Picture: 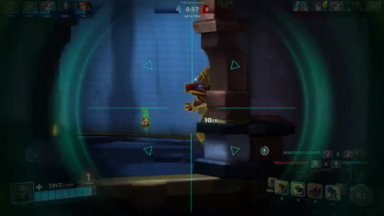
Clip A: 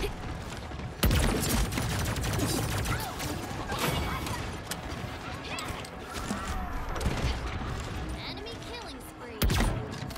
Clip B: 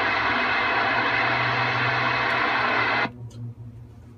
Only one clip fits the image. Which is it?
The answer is A